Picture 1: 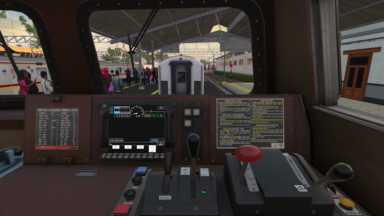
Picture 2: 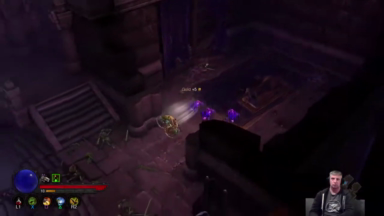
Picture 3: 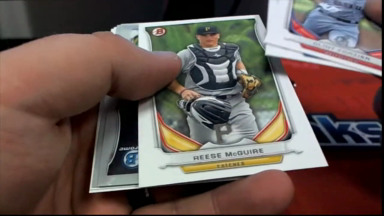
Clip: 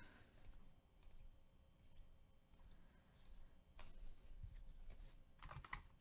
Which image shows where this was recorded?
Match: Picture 3